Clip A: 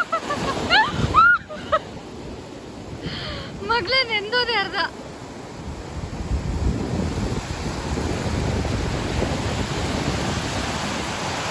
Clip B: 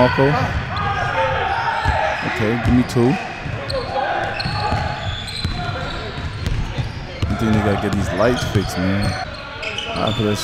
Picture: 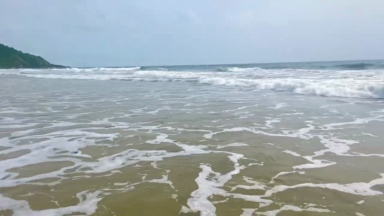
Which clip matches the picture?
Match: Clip A